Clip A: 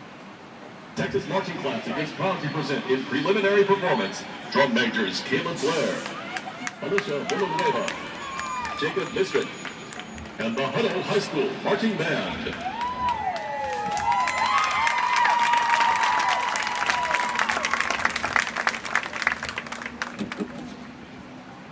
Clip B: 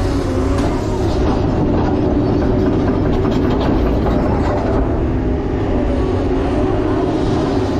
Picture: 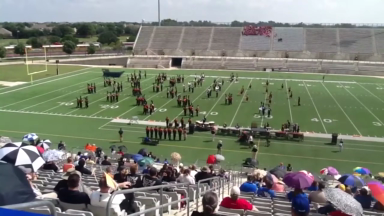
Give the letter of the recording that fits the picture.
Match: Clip A